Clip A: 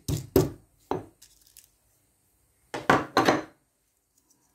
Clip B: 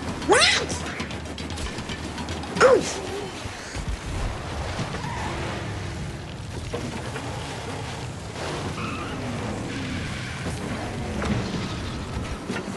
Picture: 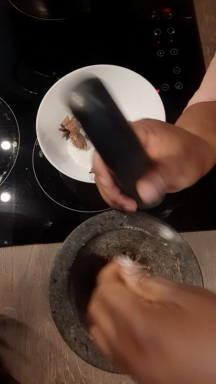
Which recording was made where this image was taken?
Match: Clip A